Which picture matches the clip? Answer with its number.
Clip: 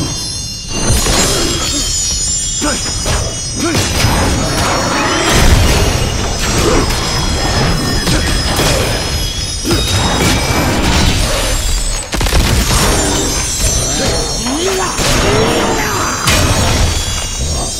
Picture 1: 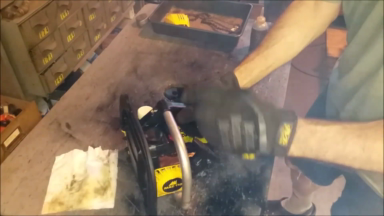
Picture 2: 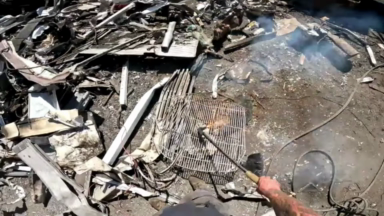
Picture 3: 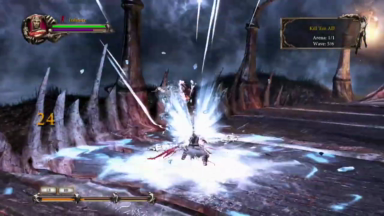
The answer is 3